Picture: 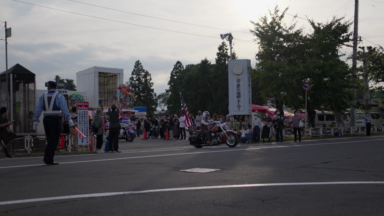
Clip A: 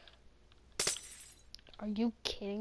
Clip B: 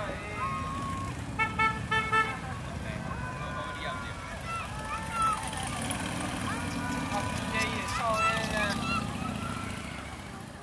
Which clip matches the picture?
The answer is B